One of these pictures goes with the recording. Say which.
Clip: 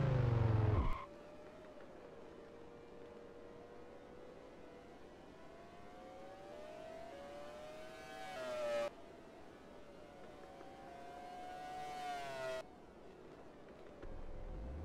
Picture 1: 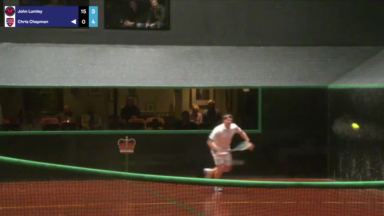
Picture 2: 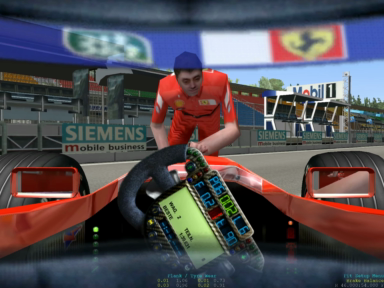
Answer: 2